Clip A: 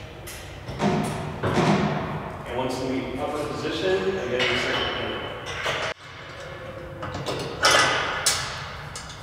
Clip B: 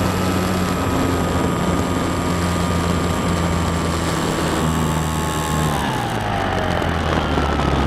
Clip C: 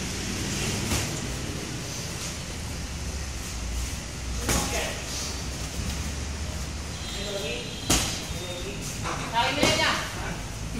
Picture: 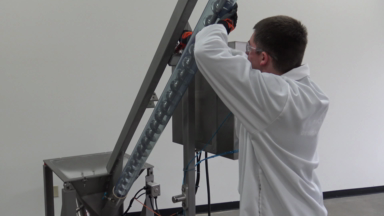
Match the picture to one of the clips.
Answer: A